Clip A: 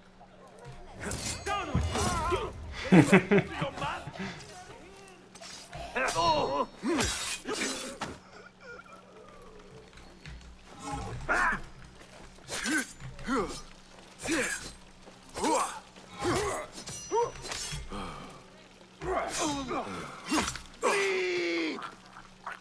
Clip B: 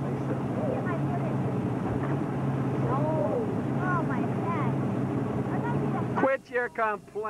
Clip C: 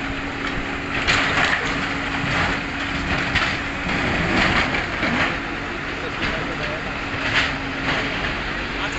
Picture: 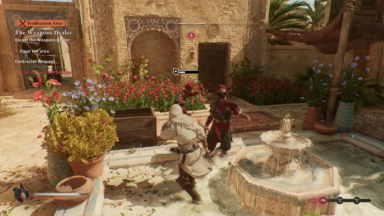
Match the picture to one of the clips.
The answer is A